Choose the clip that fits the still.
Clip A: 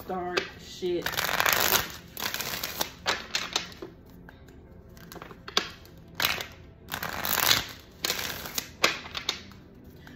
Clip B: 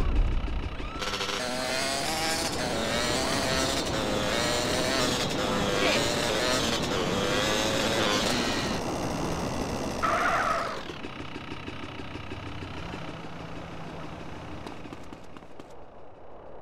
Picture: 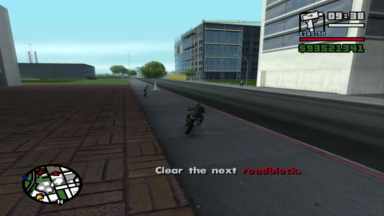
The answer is B